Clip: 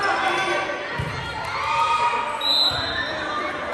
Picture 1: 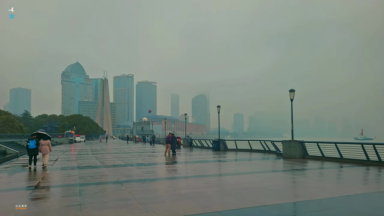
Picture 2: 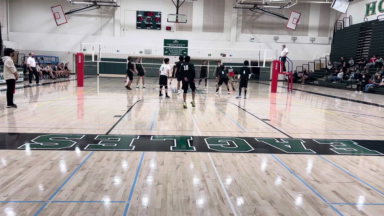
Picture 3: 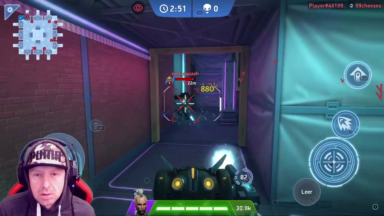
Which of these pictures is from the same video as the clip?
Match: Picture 2